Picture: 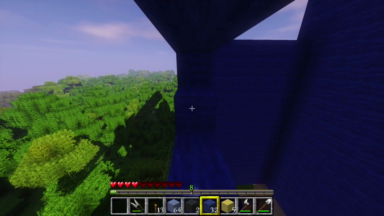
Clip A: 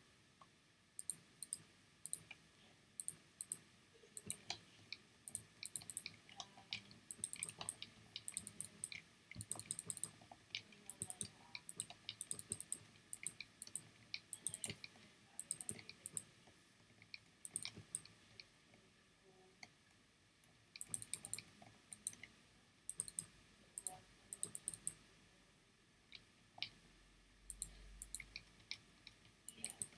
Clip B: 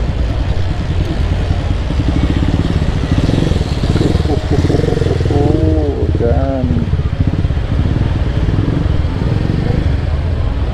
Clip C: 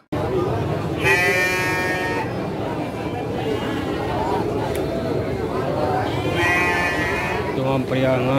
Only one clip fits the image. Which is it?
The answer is A